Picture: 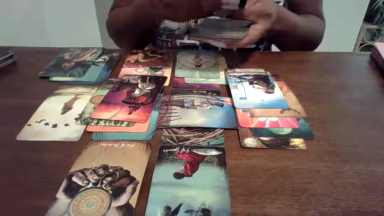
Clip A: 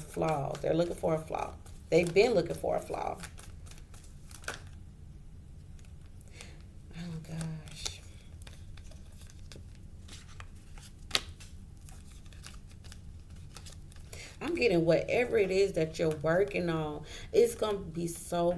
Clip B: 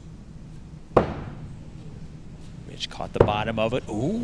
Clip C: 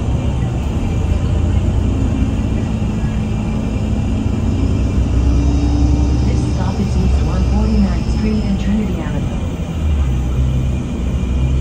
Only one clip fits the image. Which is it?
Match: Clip A